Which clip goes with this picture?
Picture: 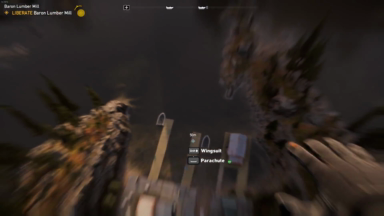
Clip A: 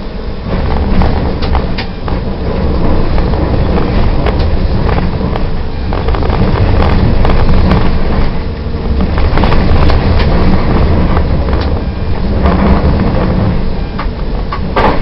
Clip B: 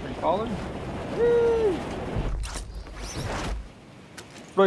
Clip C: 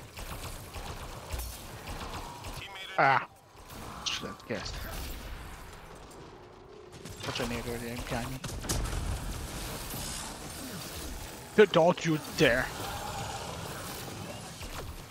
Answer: B